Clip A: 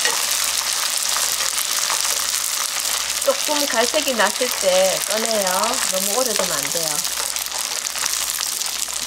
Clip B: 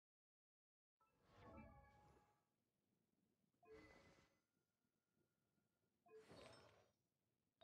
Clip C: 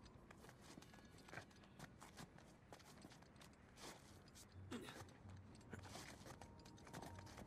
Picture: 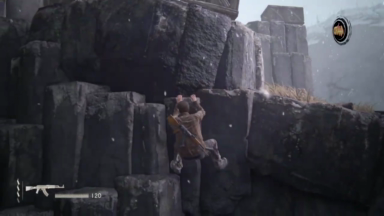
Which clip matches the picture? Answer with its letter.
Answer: C